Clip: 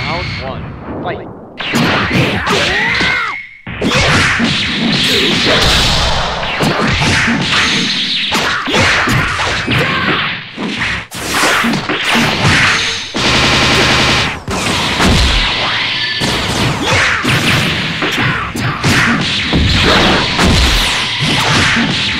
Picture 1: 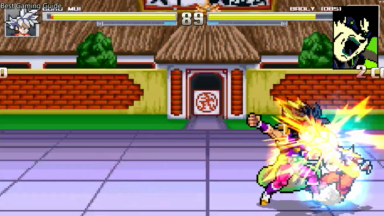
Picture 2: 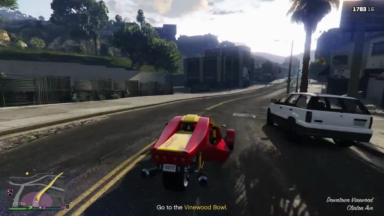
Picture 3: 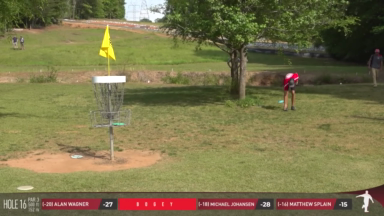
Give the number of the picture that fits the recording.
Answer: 1